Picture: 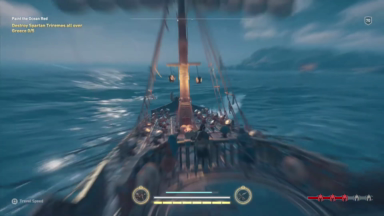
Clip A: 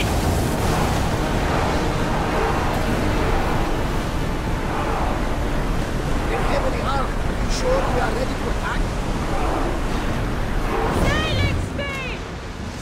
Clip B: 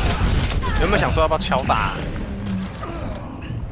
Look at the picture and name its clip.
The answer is A